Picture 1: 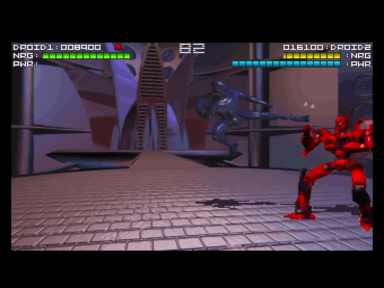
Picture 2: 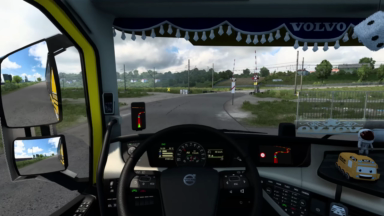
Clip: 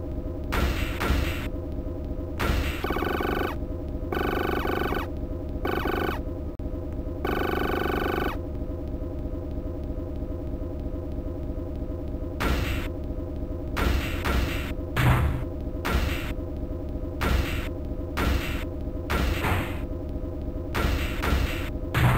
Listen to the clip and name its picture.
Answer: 1